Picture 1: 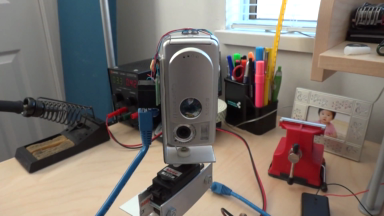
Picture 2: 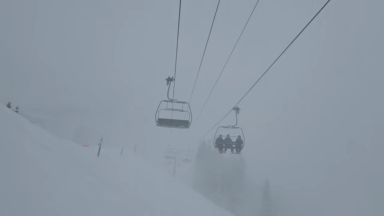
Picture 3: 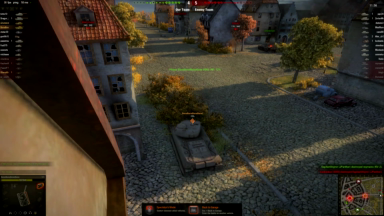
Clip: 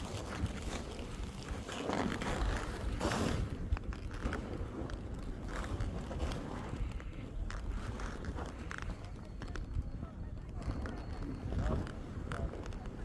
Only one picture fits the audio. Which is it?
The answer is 2